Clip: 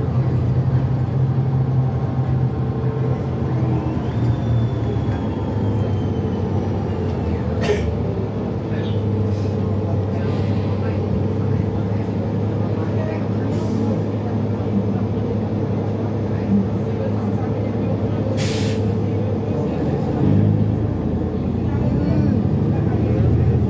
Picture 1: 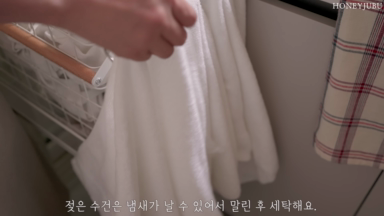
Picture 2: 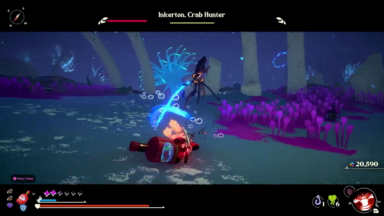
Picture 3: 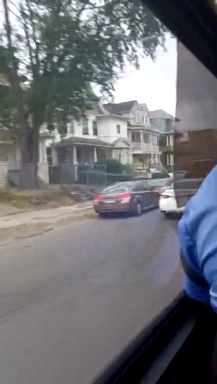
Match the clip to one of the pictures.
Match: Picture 3